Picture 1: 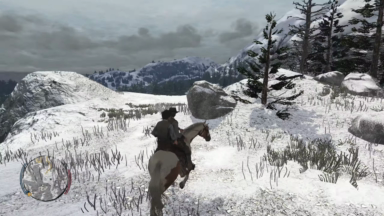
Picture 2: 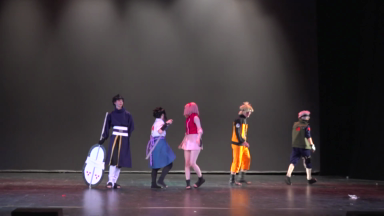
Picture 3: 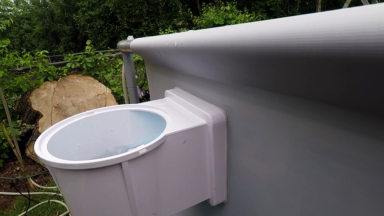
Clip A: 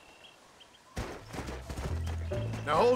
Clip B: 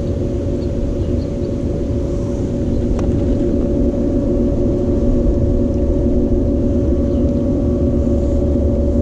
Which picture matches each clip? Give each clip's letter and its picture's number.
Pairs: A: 1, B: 3